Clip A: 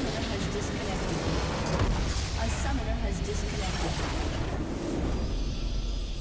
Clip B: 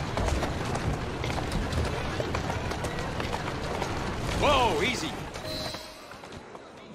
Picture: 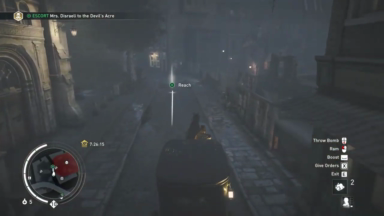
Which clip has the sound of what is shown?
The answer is B